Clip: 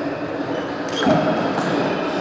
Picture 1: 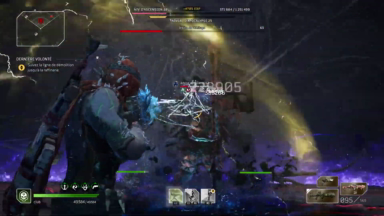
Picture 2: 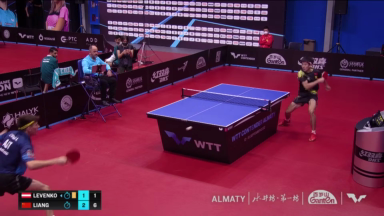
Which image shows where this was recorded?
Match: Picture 2